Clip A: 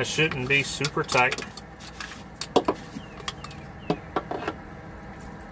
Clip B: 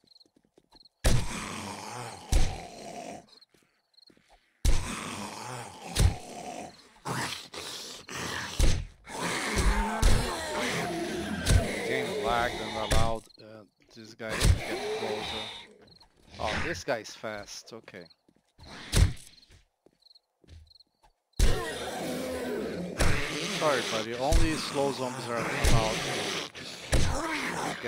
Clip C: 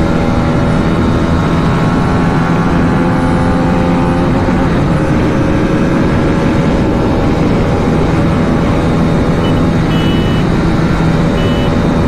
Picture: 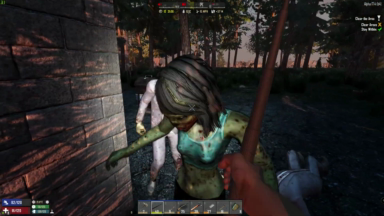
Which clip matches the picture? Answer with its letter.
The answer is B